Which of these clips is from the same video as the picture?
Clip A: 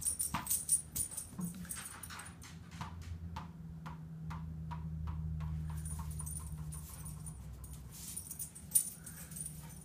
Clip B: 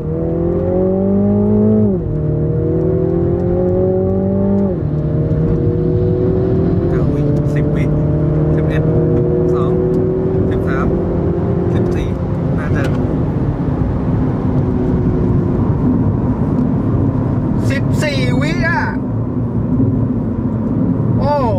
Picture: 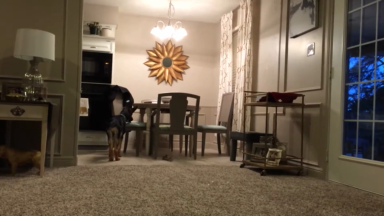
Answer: A